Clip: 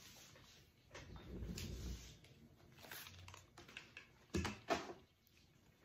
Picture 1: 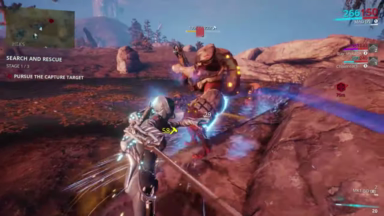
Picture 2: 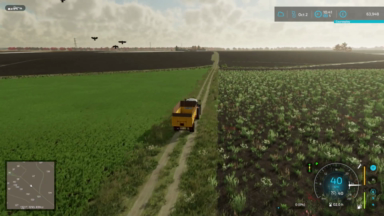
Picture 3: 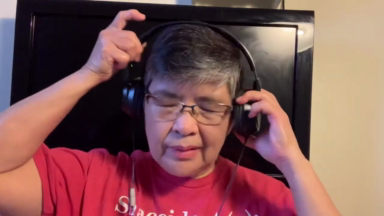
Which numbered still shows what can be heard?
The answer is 3